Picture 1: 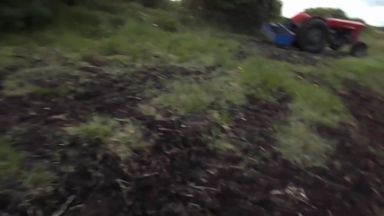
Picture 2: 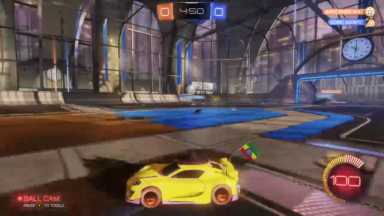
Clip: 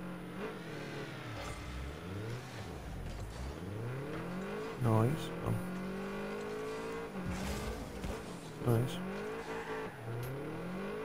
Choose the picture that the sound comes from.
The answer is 2